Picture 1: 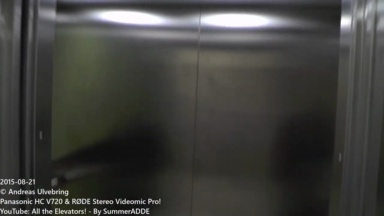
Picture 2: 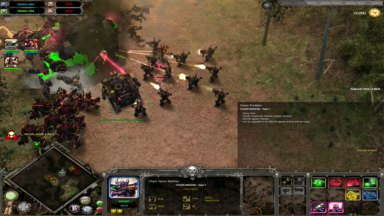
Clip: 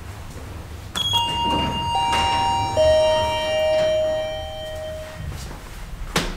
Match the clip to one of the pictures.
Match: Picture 1